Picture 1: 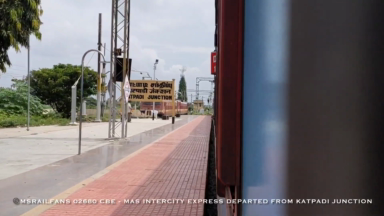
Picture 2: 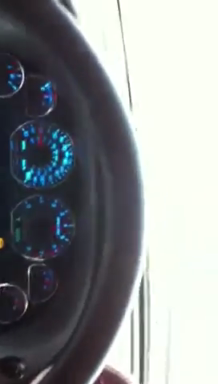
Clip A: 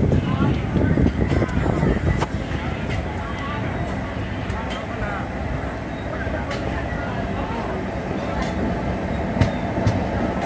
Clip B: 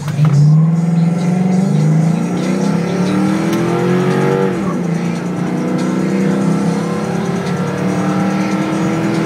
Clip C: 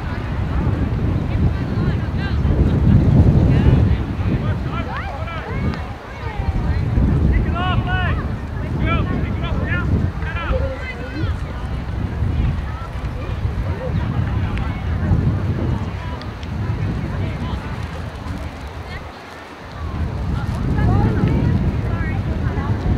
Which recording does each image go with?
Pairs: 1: A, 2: B